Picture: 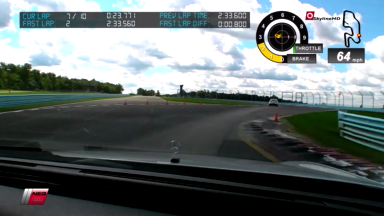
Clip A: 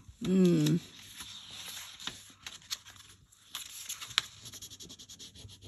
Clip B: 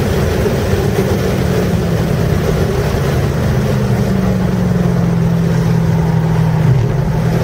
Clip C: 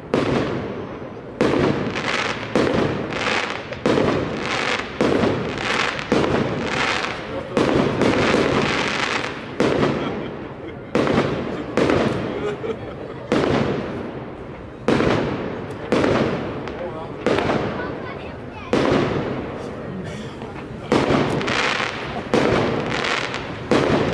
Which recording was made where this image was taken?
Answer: B